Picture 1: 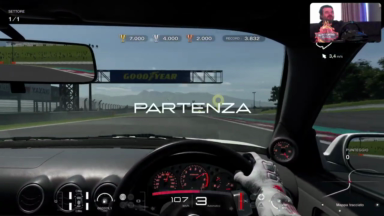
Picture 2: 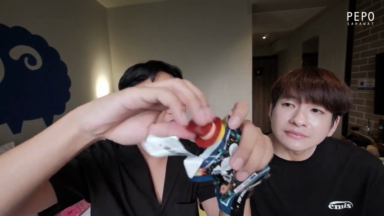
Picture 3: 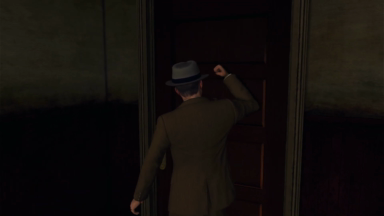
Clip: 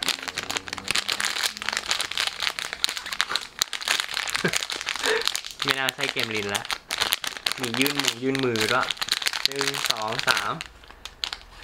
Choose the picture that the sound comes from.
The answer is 2